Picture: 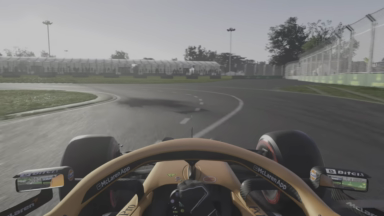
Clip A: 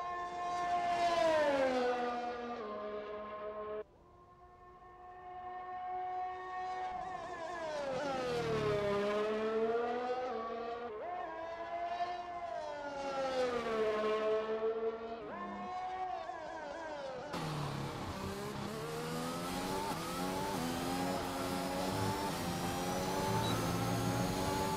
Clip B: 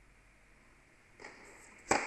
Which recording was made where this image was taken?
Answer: A